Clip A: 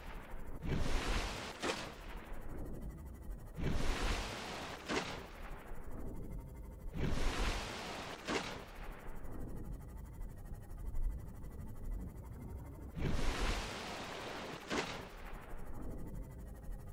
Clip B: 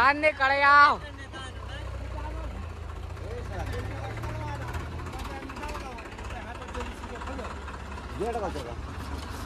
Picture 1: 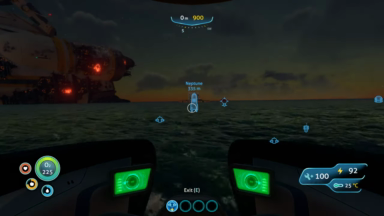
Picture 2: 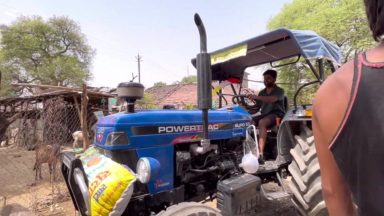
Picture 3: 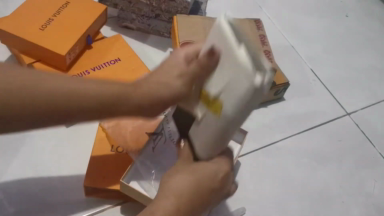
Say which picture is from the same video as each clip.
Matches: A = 1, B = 2